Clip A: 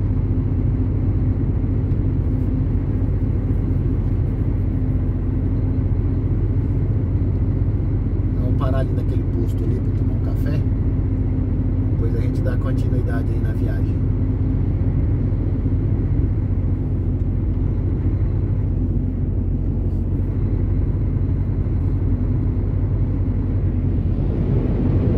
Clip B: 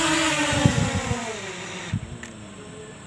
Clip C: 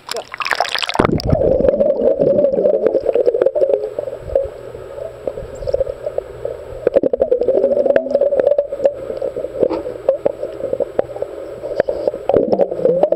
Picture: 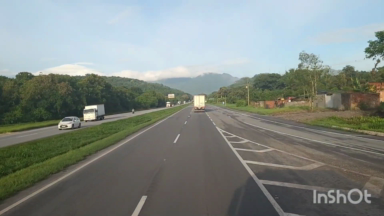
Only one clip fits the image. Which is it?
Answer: A